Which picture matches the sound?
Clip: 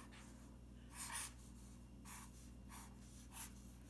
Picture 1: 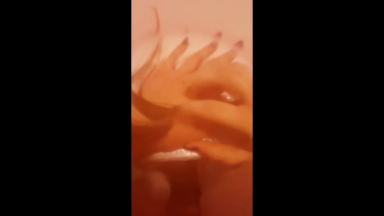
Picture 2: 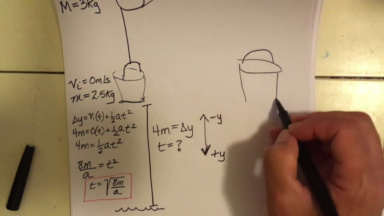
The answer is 2